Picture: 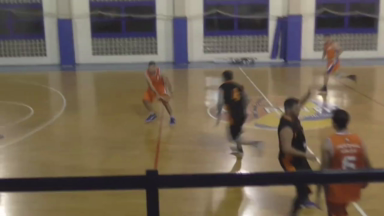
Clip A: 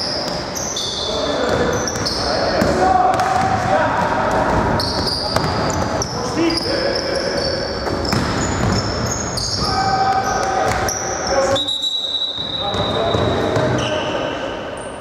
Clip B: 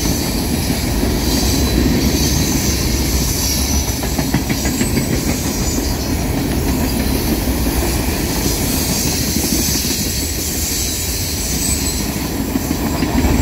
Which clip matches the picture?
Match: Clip A